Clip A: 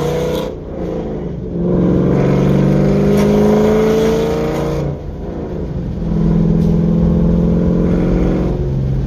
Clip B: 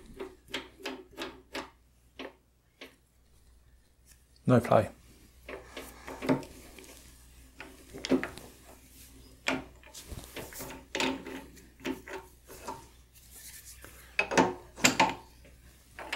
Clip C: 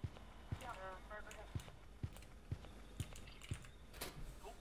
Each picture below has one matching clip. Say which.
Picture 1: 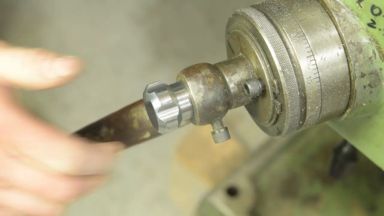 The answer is B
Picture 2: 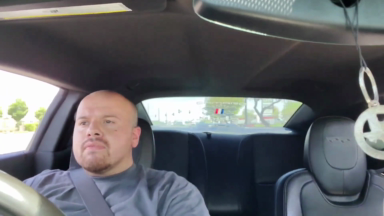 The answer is A